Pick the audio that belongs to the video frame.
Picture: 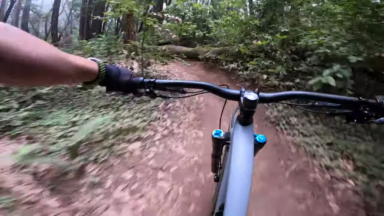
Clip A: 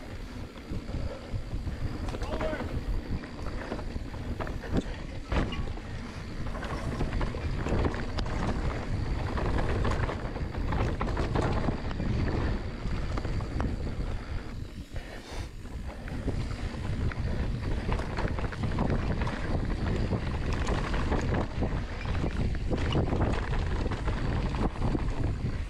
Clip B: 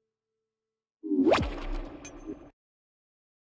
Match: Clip A